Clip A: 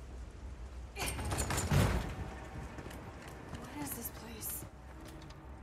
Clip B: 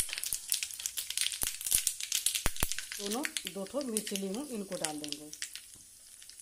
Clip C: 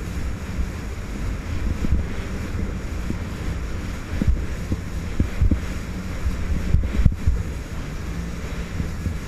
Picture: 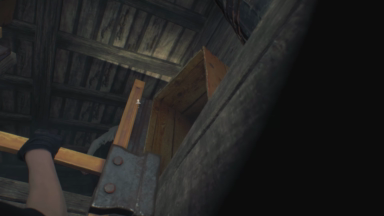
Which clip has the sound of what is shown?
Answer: A